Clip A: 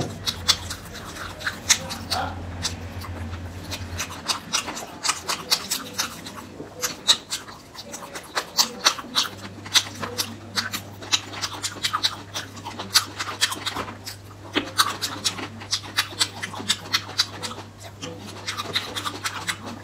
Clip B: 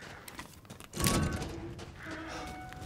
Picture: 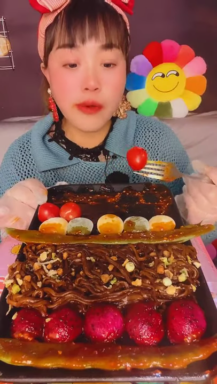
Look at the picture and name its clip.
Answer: A